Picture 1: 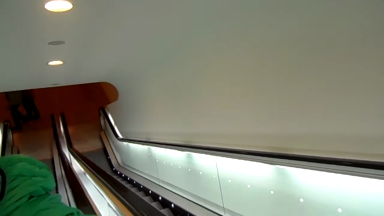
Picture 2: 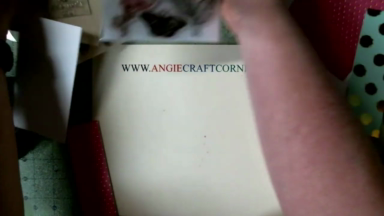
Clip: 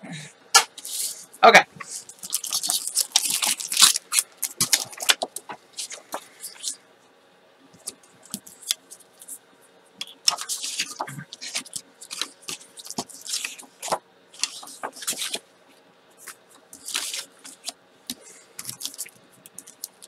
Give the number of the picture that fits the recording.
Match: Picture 2